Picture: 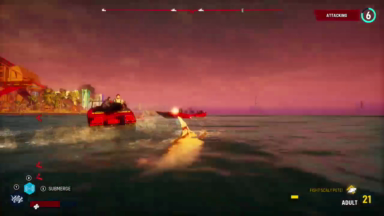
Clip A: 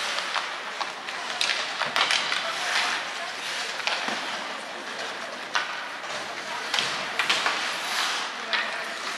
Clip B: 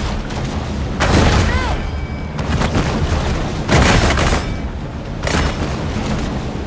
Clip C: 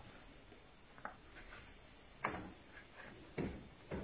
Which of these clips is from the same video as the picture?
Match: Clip B